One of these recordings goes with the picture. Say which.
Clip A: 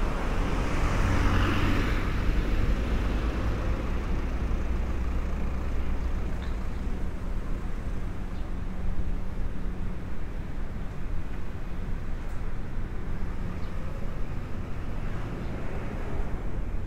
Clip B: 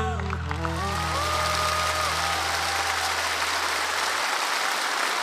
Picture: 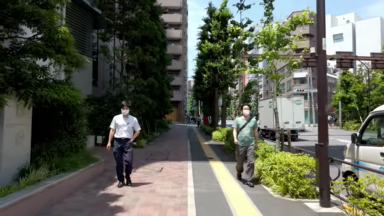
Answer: A